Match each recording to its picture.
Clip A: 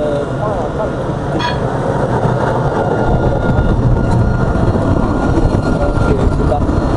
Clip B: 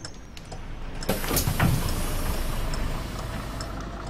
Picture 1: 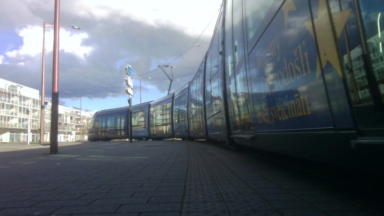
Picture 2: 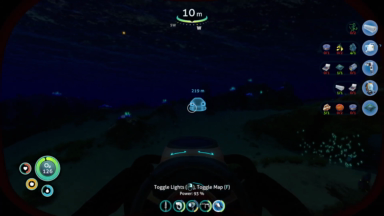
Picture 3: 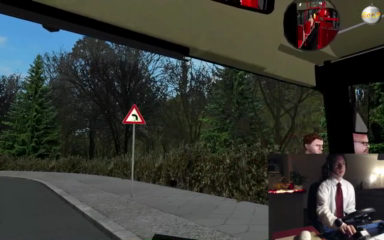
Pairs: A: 1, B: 3